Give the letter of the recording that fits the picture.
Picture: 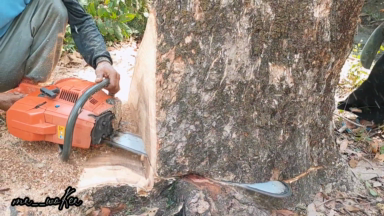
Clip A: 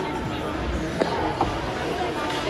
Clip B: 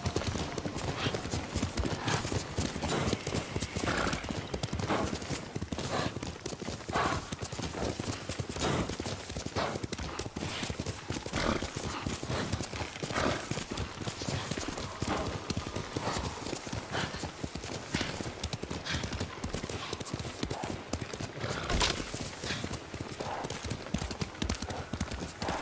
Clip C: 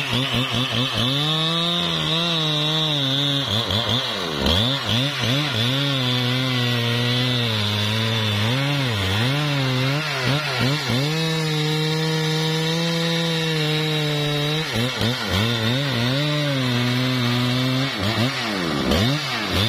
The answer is C